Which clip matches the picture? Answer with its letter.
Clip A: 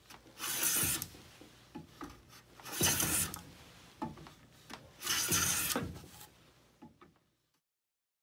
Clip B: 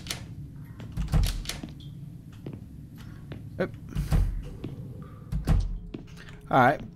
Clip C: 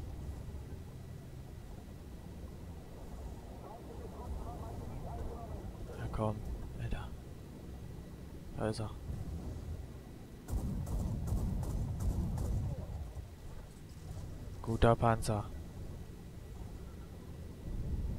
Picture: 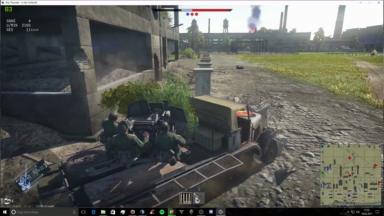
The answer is C